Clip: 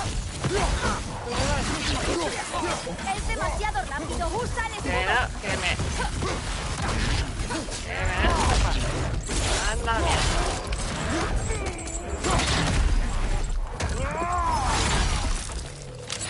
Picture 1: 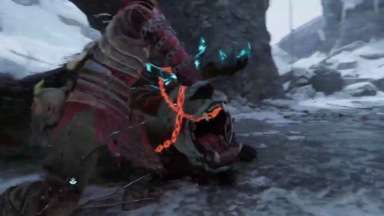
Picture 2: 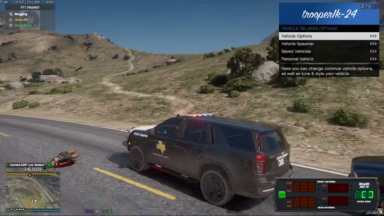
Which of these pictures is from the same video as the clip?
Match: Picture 1